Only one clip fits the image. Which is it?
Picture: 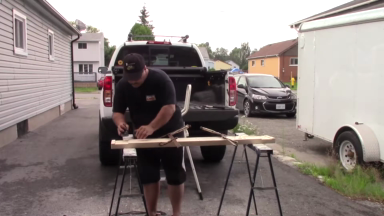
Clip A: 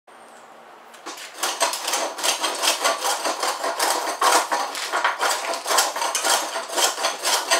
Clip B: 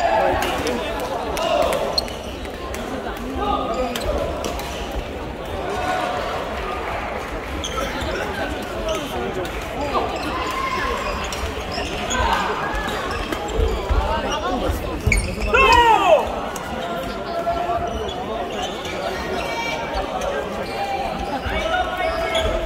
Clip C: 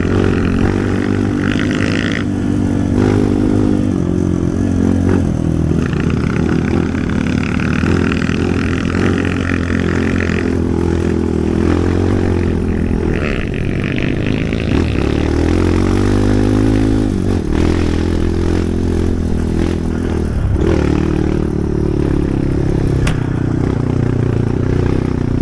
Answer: A